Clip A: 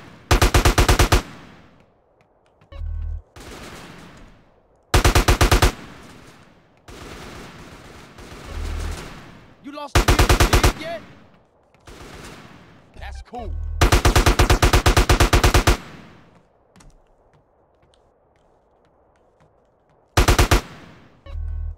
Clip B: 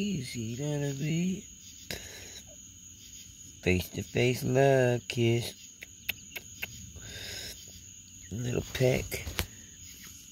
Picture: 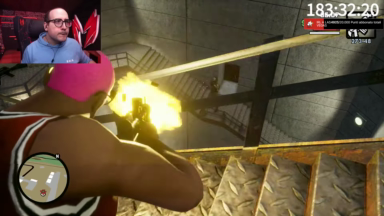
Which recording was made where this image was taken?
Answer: A